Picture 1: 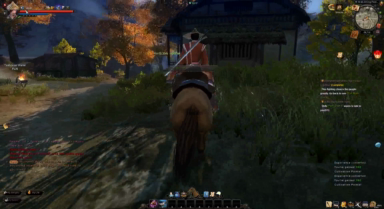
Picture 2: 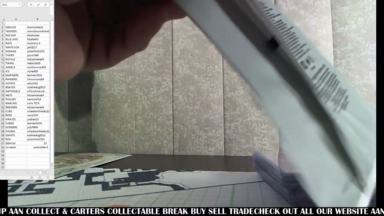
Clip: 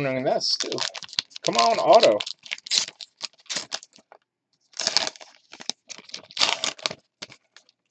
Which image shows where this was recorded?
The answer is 2